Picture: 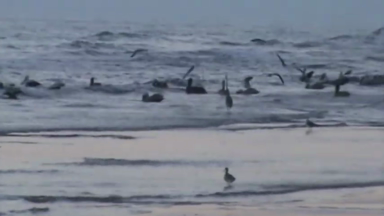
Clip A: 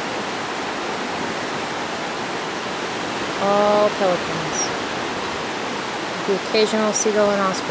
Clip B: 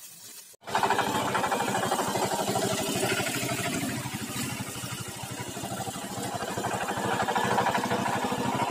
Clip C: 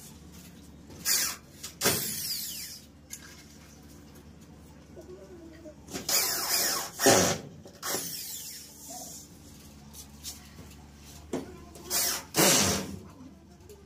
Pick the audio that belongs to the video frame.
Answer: A